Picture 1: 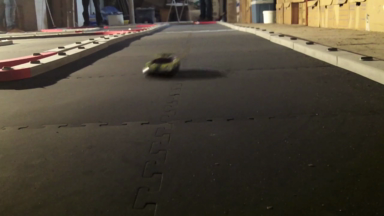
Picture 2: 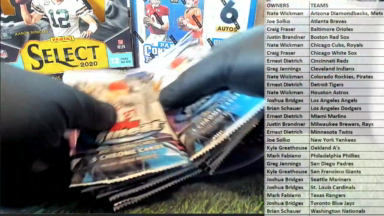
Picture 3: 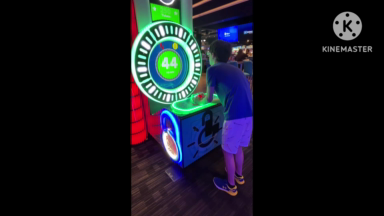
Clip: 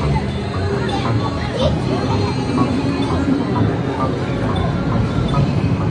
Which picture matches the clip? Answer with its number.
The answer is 3